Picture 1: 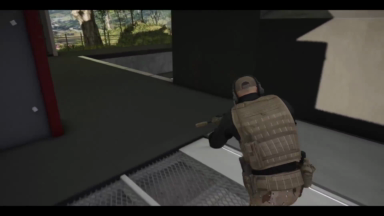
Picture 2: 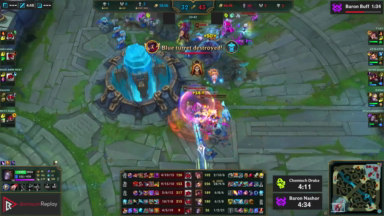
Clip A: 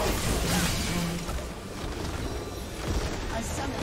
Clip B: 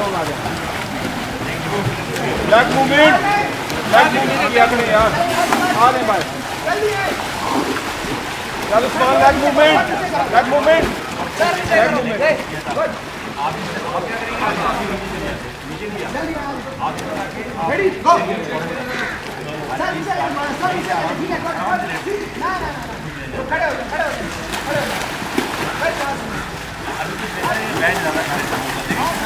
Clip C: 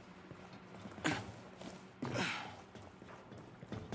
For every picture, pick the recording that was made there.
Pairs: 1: C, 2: A